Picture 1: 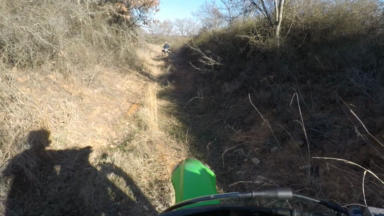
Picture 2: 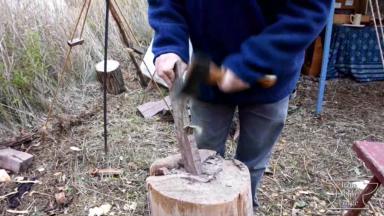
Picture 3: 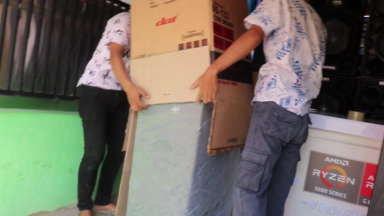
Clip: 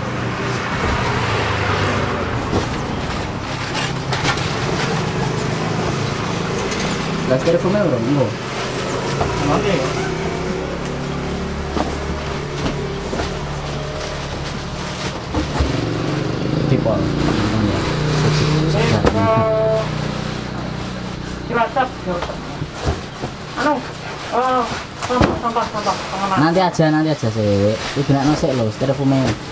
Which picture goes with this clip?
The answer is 3